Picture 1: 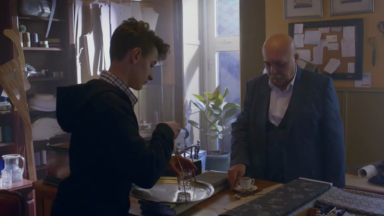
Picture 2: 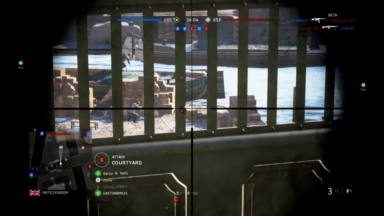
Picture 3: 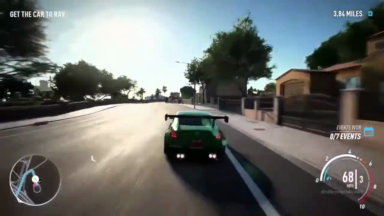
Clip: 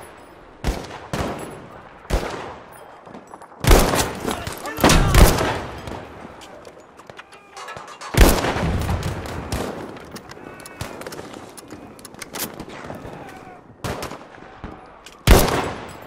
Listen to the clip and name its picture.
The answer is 2